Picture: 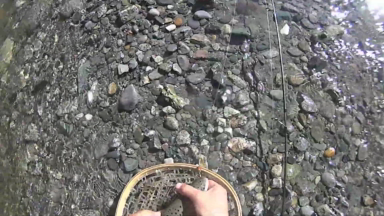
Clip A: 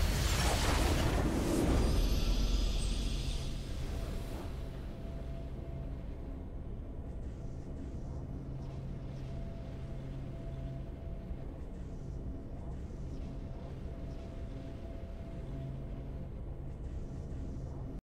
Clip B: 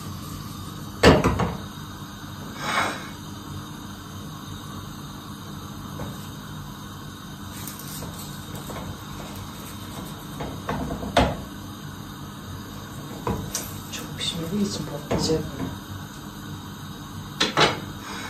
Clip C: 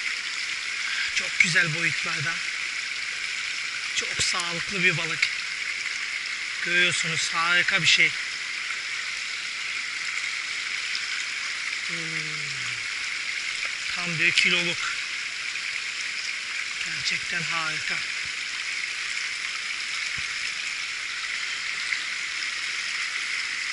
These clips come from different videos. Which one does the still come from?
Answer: C